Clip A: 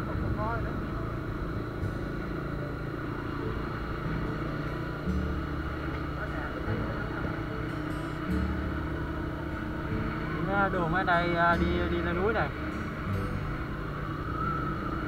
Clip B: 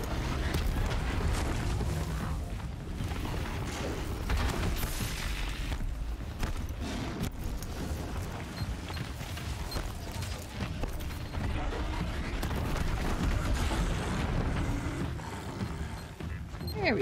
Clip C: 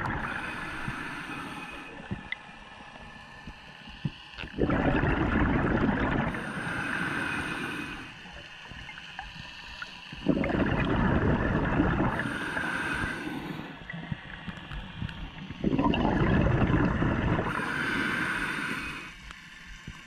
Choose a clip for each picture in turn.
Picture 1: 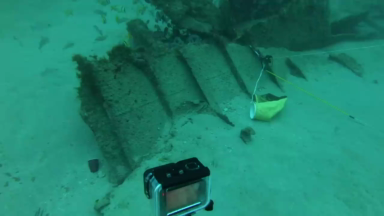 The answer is C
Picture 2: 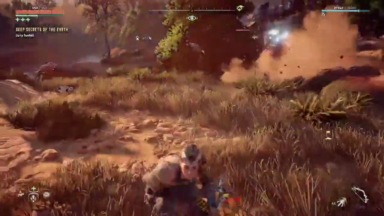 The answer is B